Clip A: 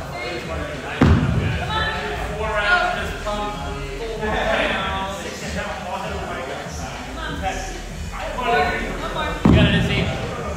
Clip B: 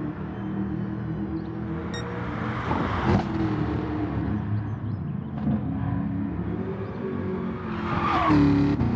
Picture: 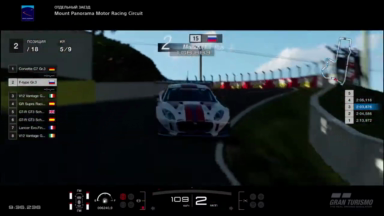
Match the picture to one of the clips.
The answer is B